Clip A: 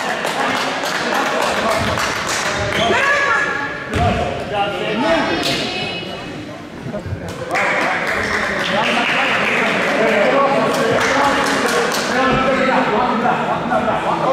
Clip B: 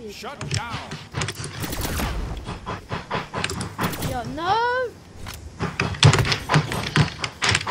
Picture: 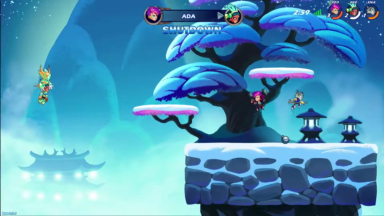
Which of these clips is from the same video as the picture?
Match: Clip B